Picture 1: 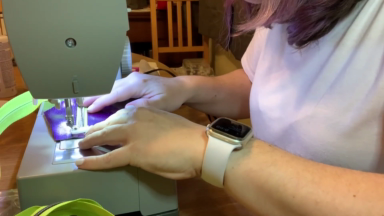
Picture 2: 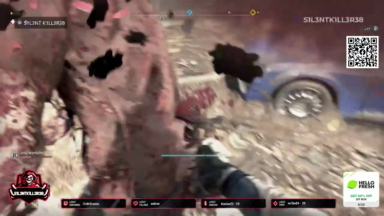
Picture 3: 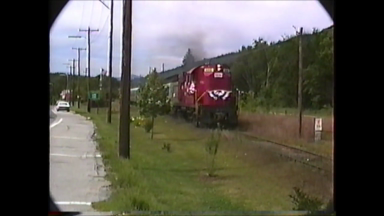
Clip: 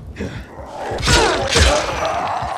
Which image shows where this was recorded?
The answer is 2